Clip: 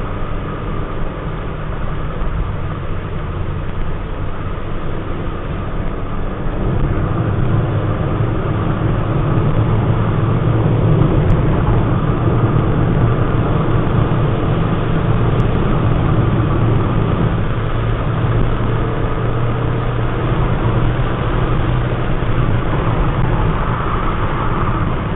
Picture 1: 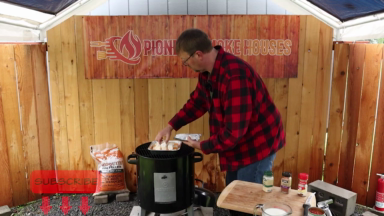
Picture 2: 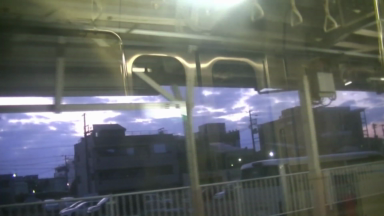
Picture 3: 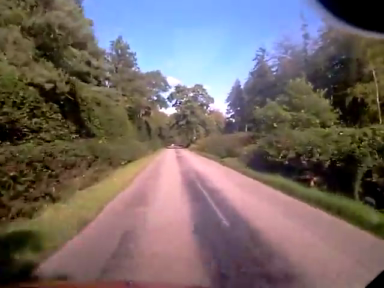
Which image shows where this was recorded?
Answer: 3